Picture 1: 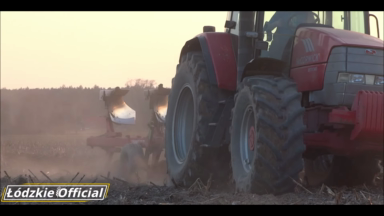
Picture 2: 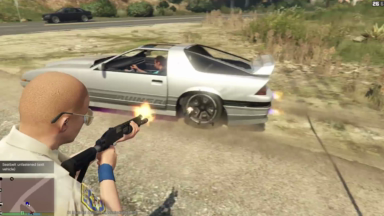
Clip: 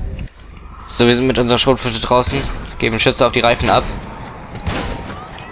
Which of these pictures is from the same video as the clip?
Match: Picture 2